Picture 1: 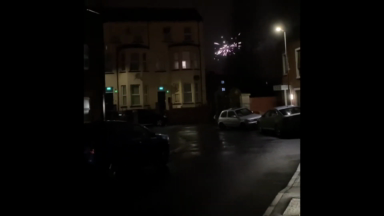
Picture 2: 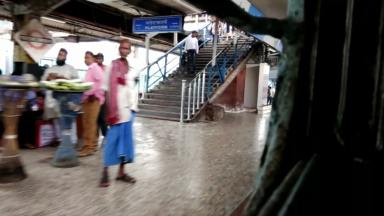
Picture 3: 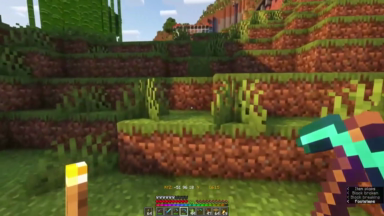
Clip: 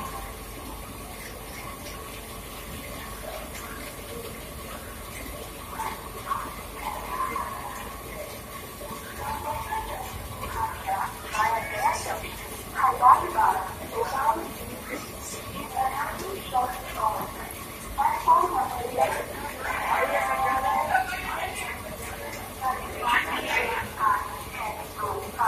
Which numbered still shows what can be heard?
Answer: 2